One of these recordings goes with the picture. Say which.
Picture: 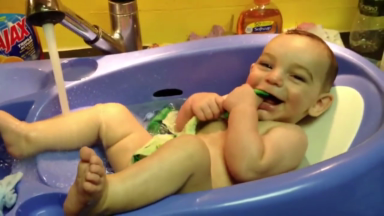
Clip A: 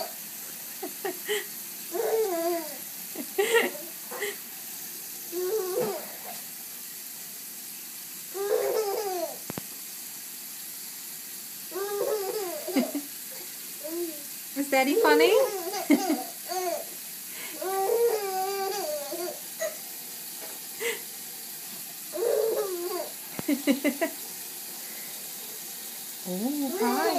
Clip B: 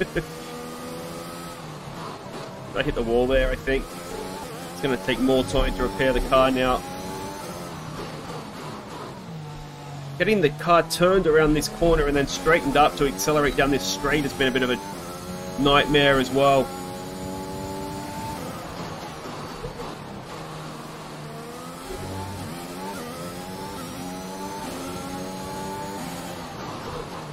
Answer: A